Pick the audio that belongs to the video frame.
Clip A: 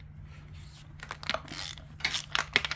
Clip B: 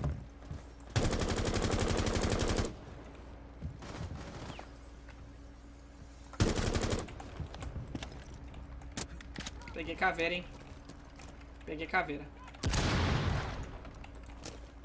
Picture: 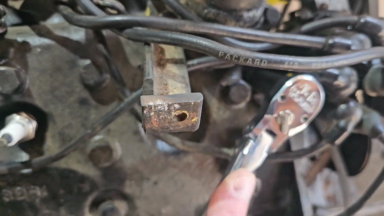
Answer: A